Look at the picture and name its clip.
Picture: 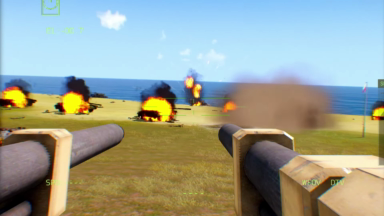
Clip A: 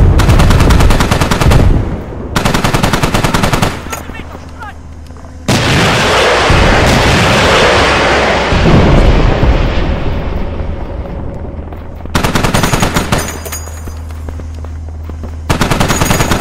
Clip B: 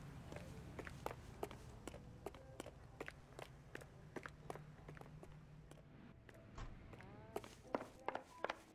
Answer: A